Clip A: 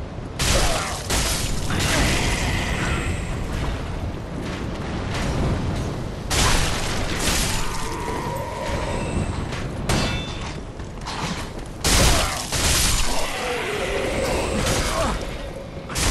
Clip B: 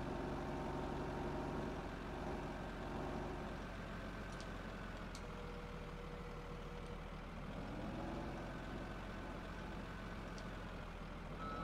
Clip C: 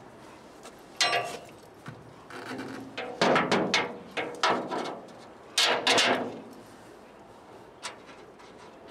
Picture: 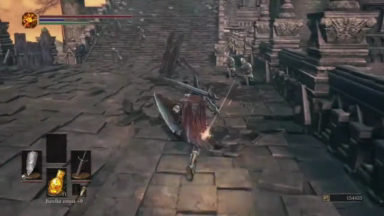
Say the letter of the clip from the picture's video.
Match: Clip A